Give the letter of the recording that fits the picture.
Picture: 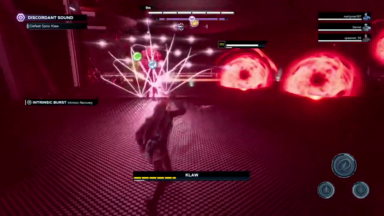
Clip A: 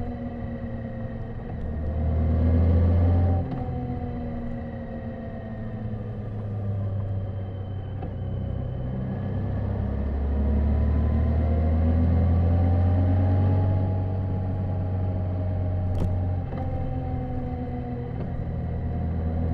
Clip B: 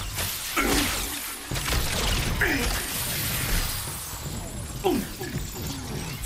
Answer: B